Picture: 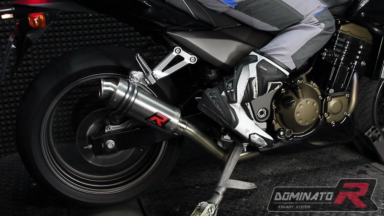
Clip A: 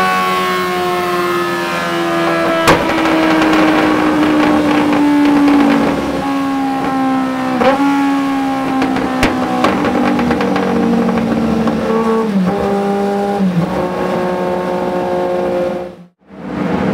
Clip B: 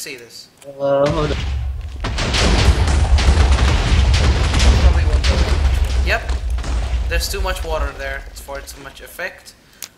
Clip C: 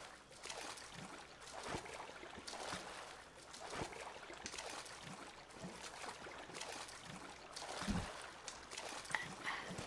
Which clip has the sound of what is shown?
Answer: A